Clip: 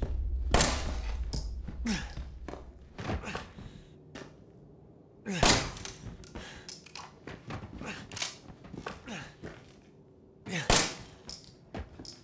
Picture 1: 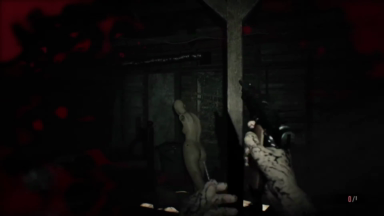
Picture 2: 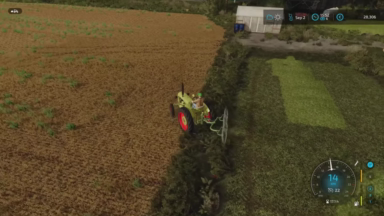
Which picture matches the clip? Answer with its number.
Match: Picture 1